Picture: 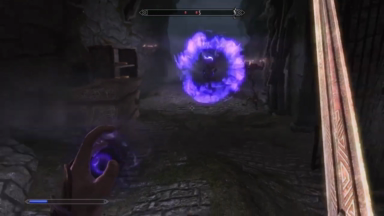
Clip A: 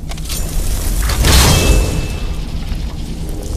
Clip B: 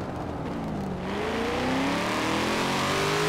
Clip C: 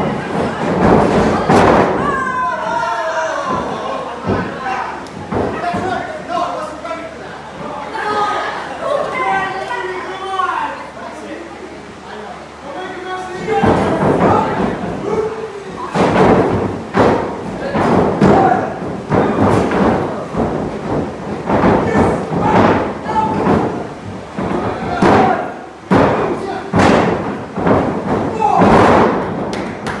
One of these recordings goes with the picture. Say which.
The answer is A